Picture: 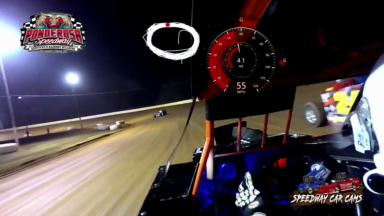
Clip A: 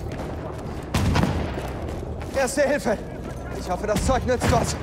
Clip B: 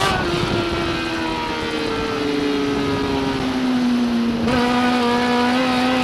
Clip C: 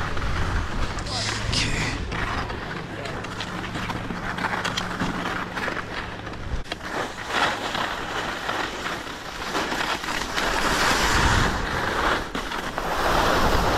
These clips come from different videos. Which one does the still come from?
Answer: B